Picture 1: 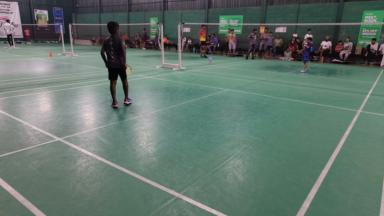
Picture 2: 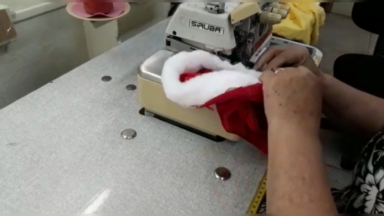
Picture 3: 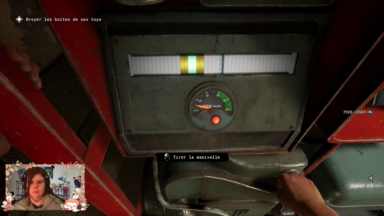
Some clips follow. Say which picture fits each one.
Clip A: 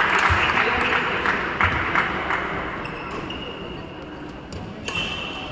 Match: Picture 1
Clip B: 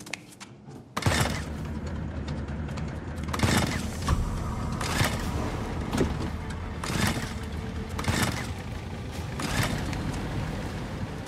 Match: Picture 3